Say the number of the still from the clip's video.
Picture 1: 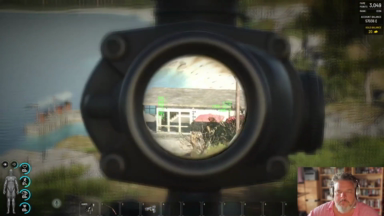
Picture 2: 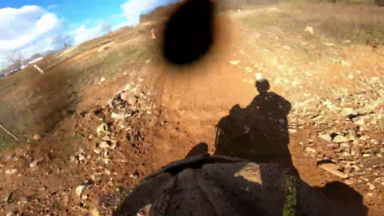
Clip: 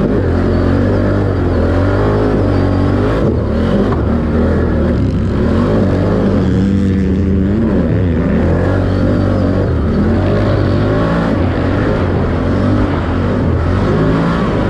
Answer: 2